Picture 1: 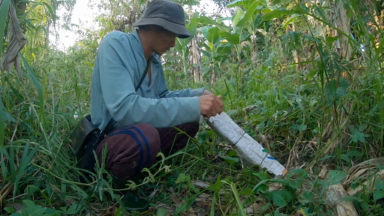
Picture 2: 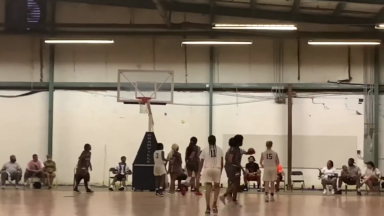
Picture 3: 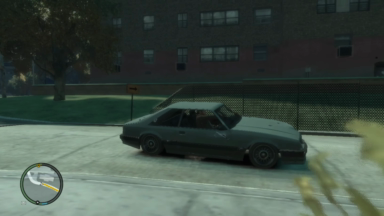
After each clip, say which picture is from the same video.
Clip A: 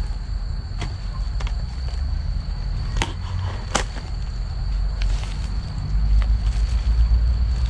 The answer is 1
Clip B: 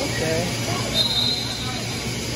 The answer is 2